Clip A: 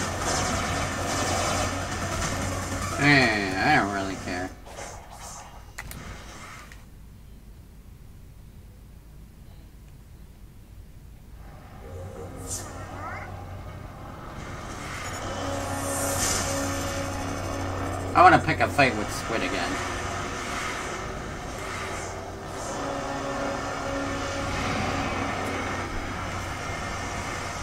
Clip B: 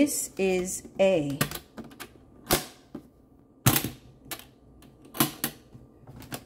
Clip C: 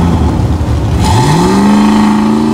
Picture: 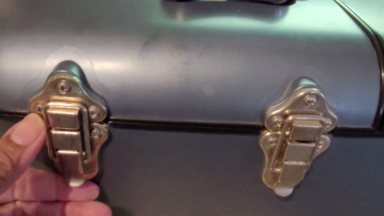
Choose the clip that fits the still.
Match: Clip B